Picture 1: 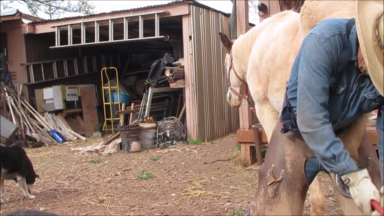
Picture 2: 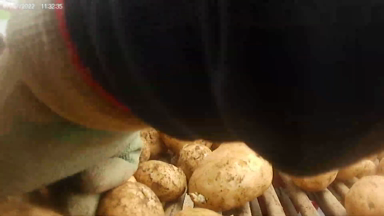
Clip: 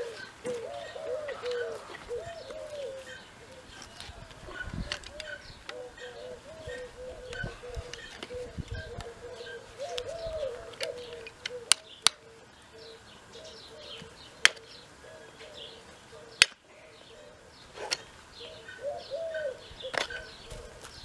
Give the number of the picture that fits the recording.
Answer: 1